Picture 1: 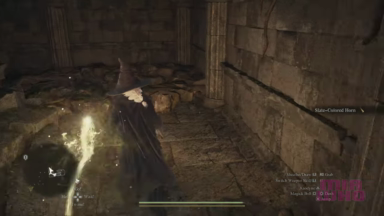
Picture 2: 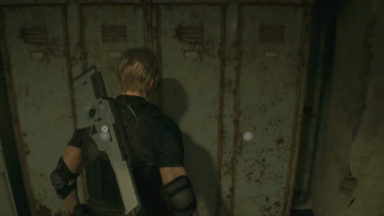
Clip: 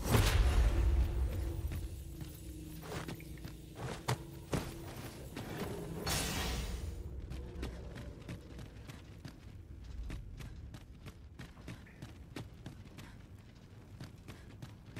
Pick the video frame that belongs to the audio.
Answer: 1